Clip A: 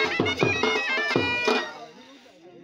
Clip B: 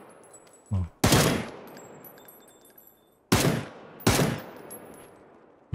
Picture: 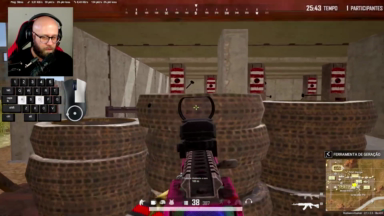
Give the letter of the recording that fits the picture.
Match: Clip B